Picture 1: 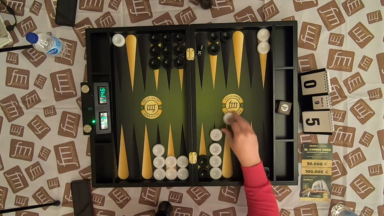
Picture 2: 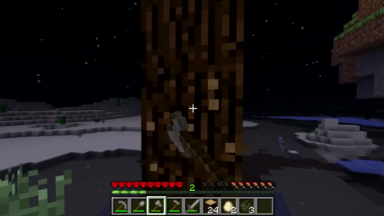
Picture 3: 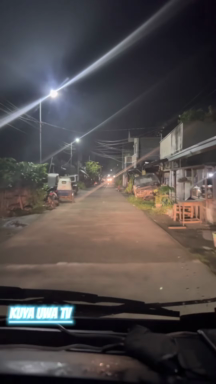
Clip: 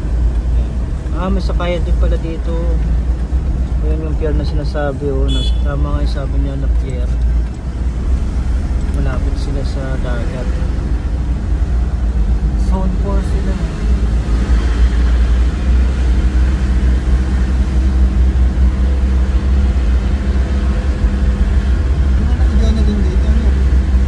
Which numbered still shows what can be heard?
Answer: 3